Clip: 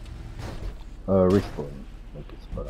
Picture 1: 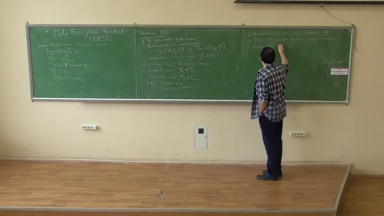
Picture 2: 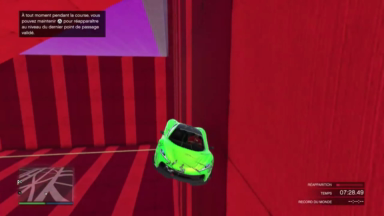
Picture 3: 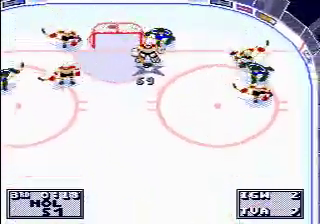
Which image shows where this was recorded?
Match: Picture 2